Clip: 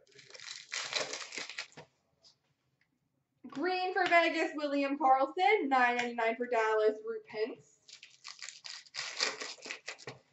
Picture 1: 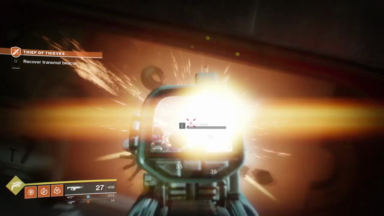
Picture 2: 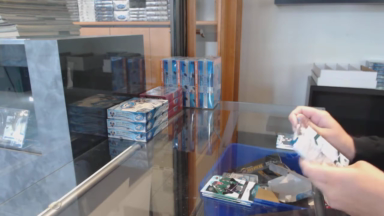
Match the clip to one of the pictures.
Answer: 2